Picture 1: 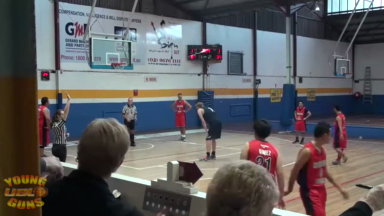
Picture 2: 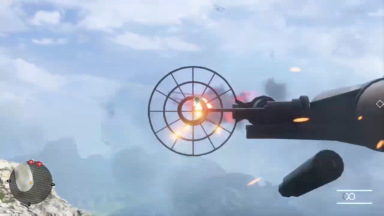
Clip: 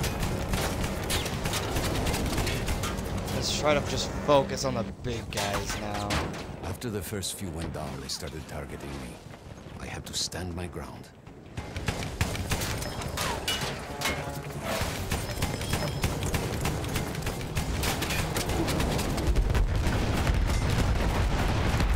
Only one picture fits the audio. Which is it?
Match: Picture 2